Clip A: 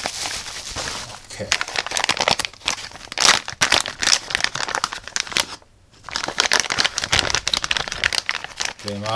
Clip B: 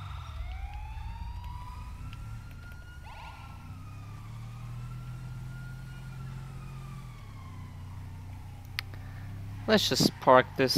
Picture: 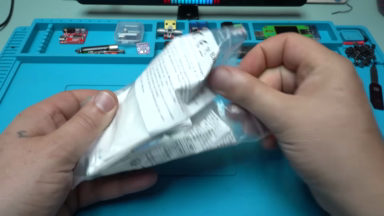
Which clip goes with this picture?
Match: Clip A